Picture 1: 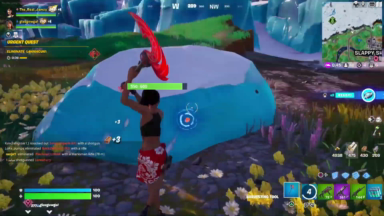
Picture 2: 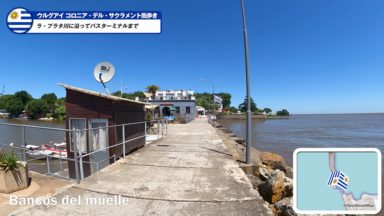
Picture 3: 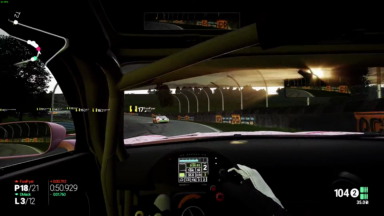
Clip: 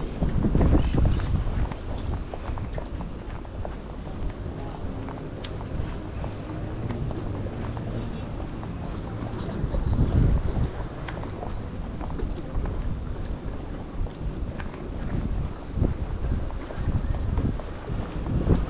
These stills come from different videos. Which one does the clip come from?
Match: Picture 2